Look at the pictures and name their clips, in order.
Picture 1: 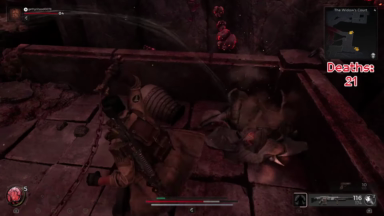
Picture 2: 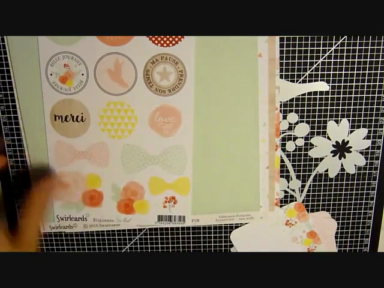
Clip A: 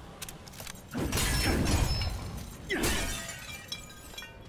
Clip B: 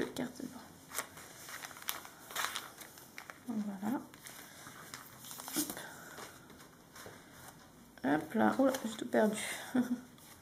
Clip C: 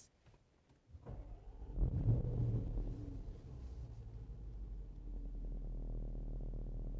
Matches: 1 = A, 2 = B